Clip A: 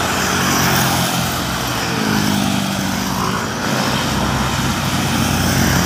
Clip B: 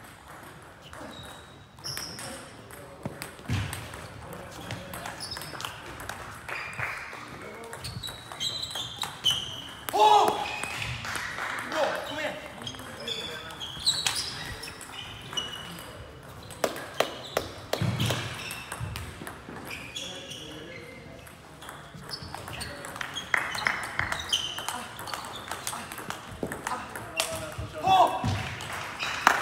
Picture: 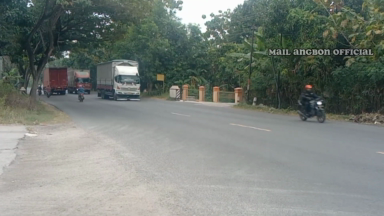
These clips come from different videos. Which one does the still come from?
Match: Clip A